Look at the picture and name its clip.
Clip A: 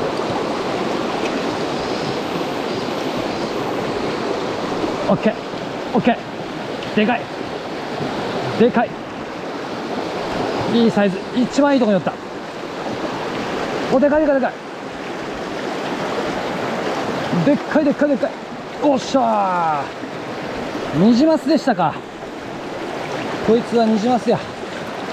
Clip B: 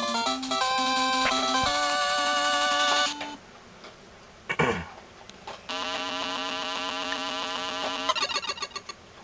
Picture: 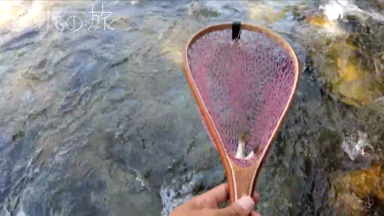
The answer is A